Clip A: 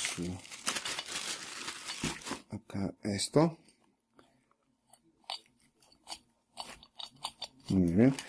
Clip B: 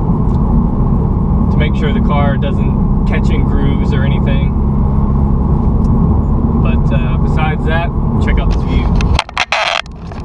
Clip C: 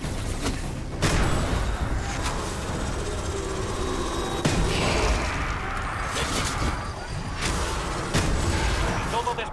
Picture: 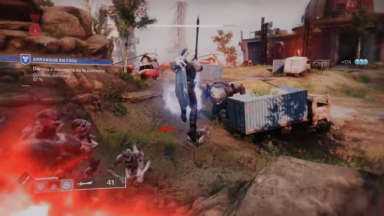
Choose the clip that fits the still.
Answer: C